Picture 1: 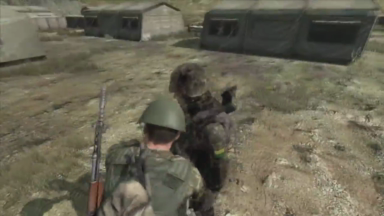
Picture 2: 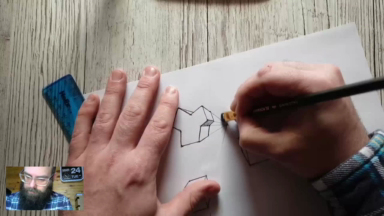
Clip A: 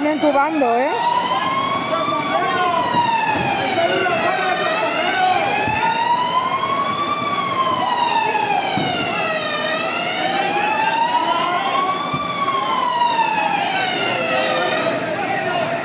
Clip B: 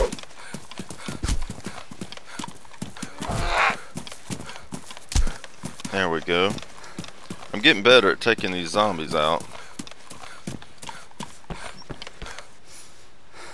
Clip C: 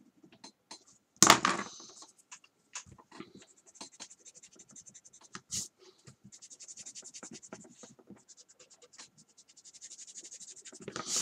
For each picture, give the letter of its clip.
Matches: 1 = B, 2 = C